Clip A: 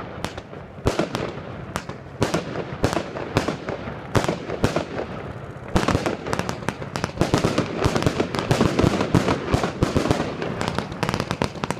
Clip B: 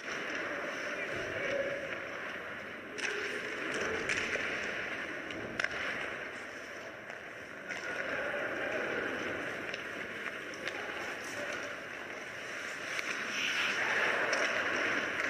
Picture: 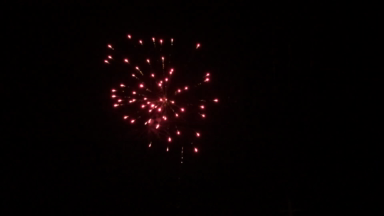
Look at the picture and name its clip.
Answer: A